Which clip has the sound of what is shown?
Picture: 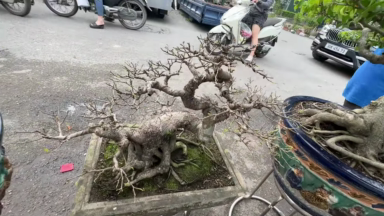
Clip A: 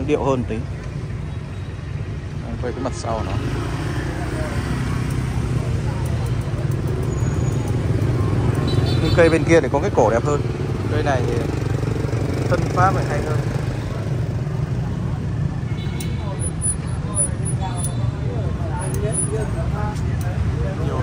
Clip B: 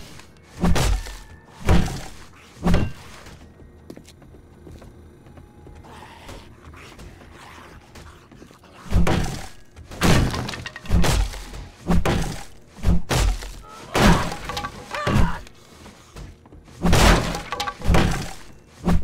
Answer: A